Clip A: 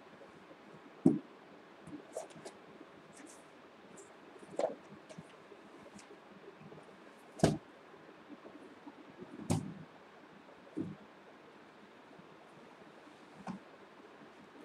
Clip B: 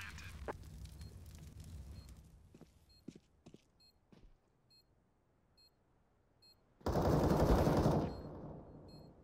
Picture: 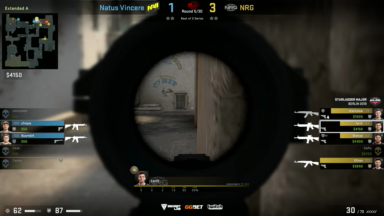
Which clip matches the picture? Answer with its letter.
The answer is B